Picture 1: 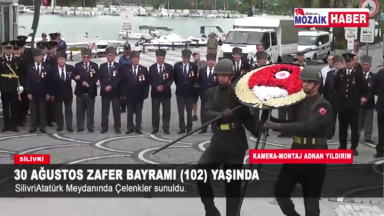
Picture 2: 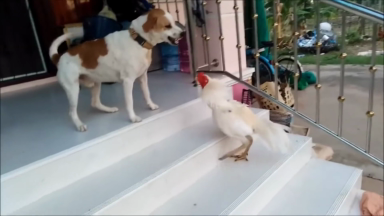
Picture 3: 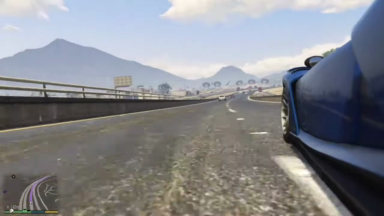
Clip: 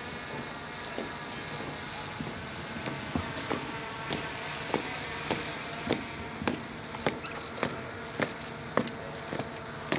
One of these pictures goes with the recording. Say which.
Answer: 1